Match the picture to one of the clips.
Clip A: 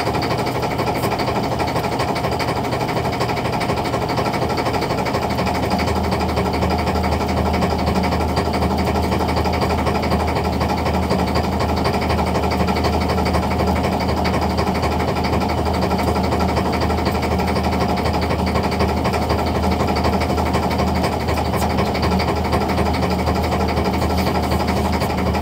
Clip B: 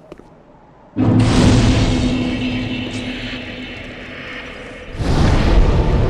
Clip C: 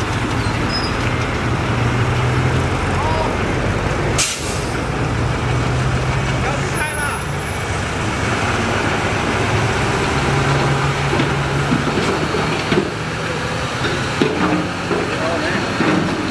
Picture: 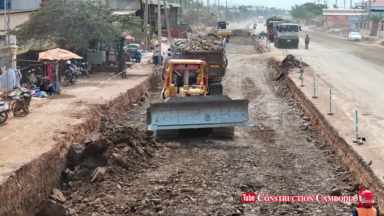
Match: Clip C